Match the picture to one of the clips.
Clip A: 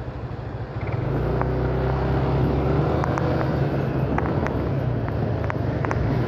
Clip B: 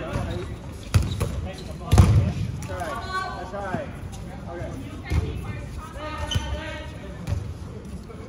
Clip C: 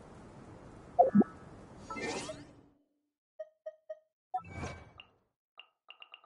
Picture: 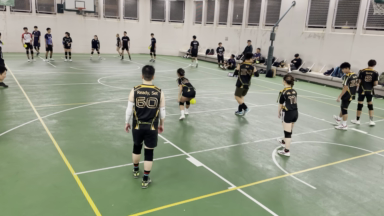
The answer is B